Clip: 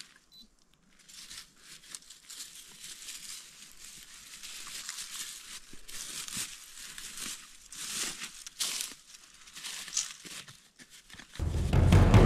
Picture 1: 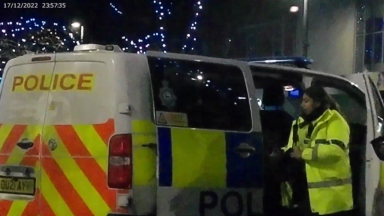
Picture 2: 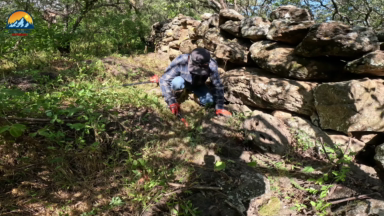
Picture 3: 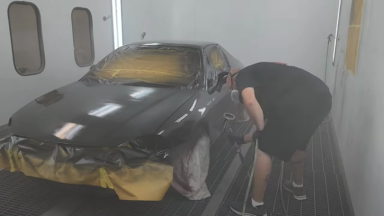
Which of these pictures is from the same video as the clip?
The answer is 2